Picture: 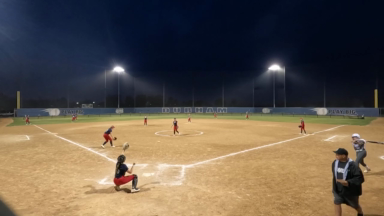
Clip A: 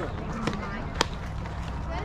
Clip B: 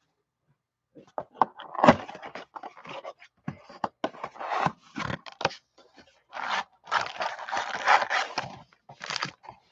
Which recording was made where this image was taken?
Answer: A